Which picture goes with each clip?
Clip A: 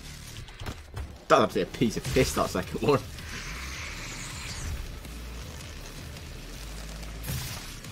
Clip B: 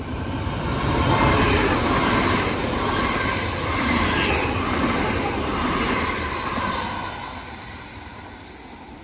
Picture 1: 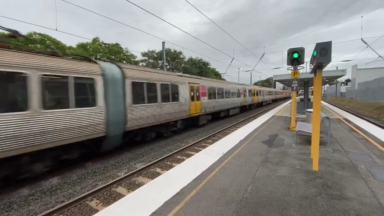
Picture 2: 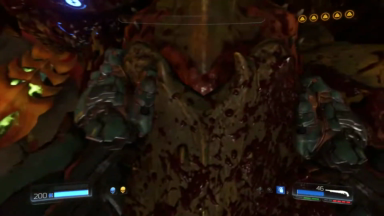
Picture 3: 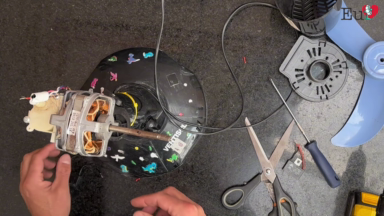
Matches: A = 2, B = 1